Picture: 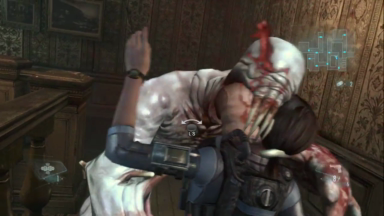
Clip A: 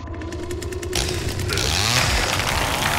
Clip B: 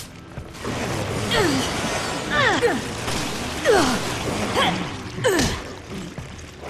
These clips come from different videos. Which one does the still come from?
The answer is B